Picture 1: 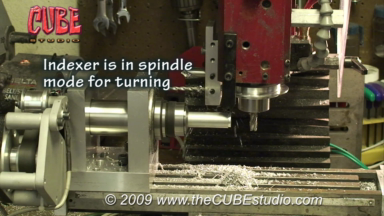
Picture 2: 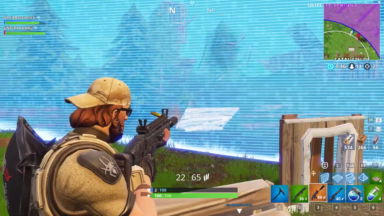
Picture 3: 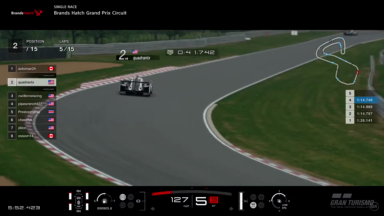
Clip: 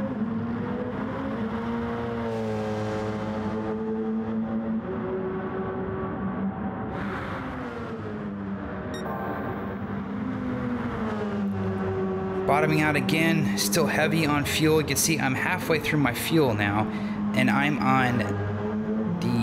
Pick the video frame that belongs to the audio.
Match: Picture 3